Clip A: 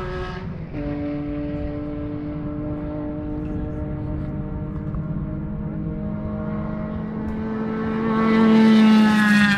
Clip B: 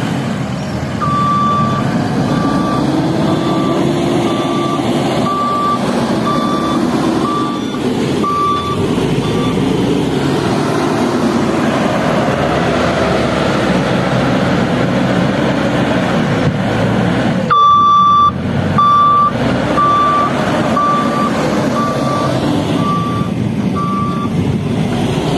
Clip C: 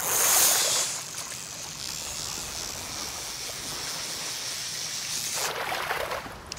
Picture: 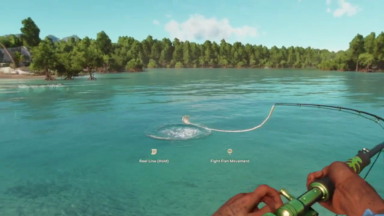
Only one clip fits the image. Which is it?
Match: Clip C